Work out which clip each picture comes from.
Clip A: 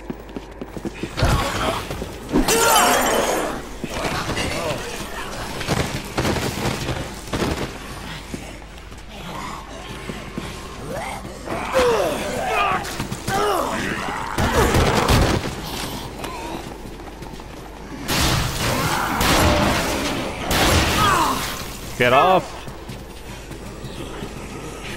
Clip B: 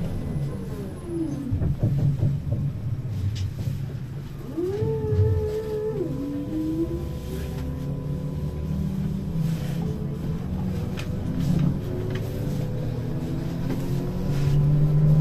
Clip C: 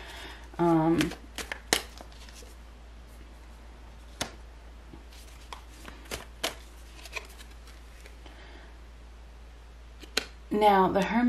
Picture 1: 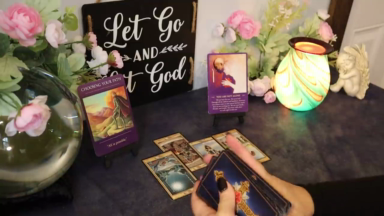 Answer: C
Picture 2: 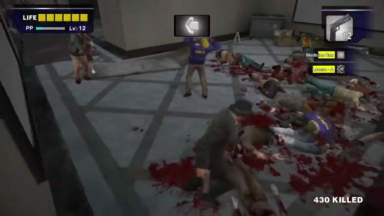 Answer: A